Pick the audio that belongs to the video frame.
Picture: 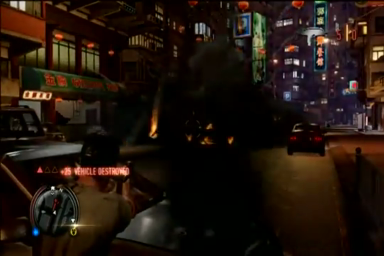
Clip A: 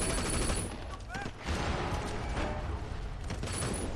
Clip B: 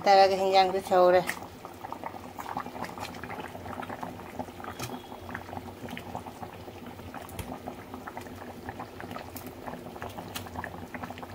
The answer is A